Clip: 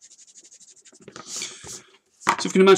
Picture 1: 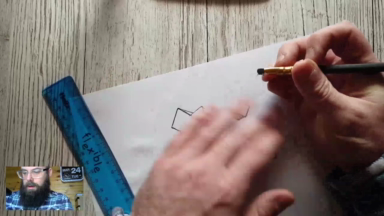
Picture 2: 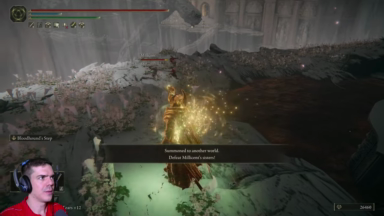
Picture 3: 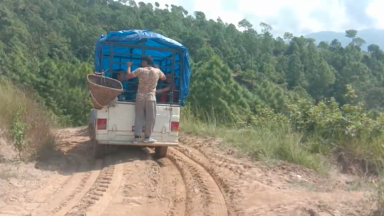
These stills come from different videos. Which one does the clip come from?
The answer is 1